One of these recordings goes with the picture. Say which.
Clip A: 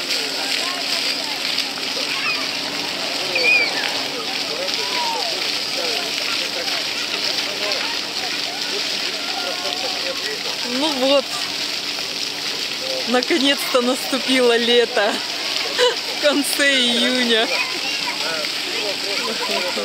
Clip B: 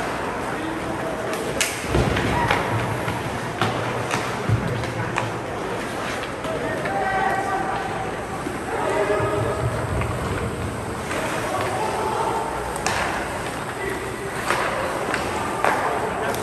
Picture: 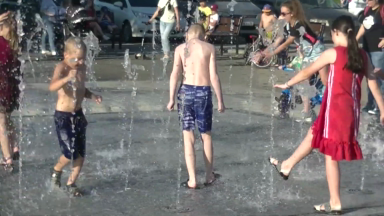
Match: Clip A